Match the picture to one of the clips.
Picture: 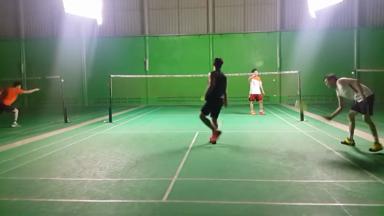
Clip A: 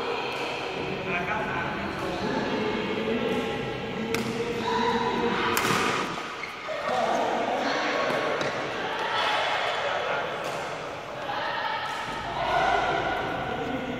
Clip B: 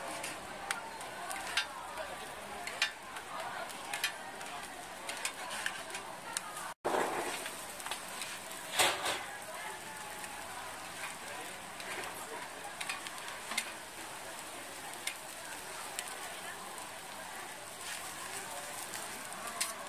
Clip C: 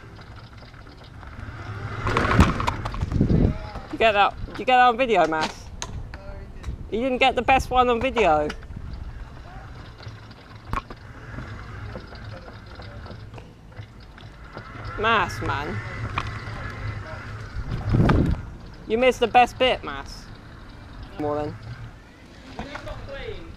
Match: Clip A